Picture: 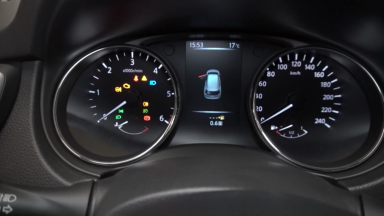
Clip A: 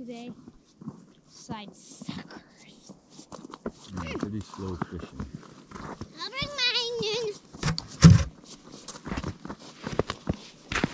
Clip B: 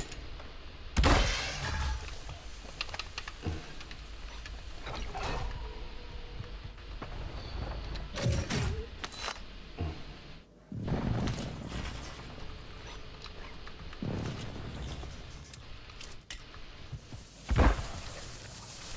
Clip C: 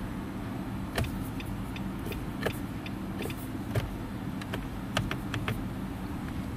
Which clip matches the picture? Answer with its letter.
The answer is C